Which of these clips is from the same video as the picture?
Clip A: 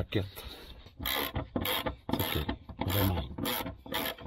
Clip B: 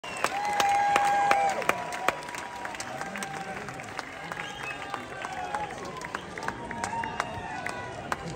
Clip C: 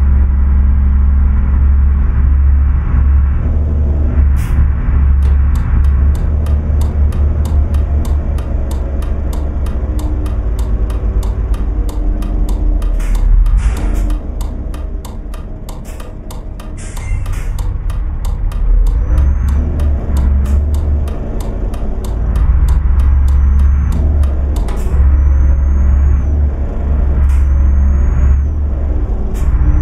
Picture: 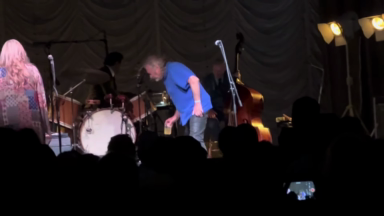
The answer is B